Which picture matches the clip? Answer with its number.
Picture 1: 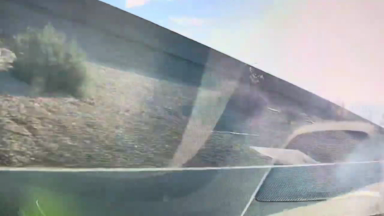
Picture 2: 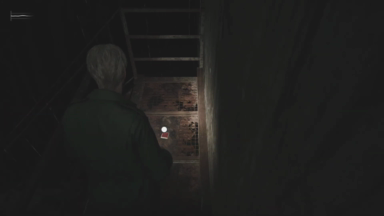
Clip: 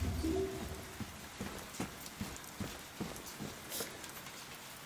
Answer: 2